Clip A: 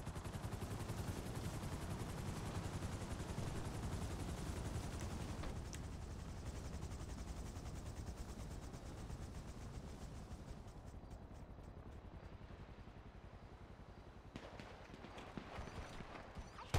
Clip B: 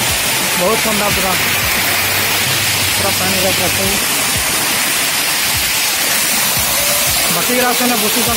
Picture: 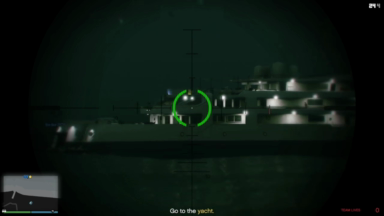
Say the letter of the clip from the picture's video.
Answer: A